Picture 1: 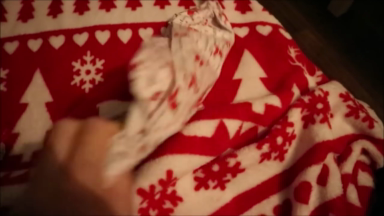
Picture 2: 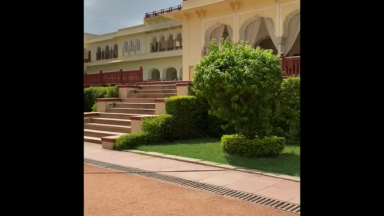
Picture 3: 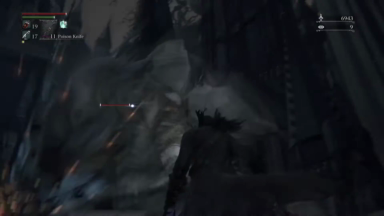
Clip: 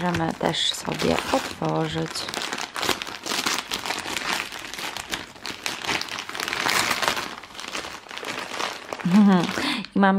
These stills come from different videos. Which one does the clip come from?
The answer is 1